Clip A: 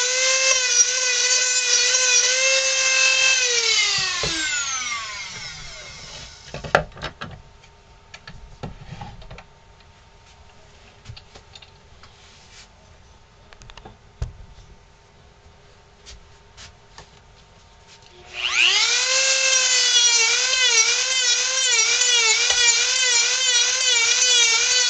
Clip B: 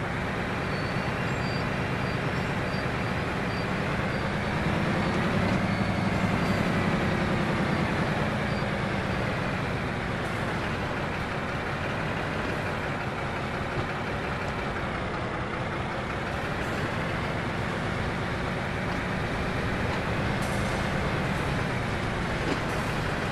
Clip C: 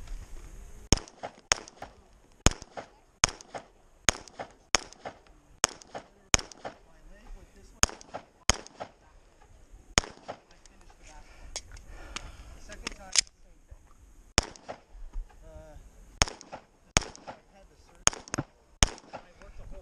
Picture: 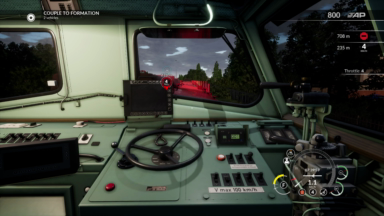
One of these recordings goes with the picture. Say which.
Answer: B